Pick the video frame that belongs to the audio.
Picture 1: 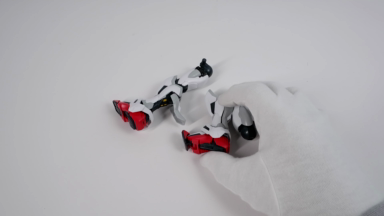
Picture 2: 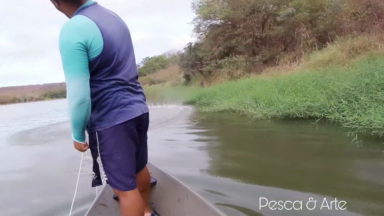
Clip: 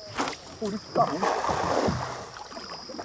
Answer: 2